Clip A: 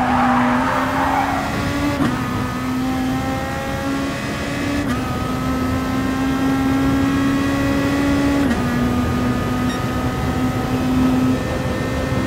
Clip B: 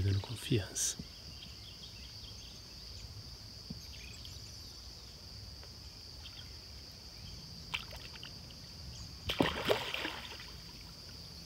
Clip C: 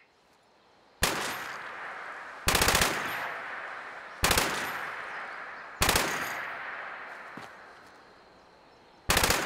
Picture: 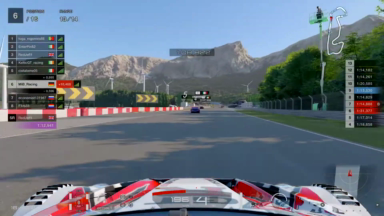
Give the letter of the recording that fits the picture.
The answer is A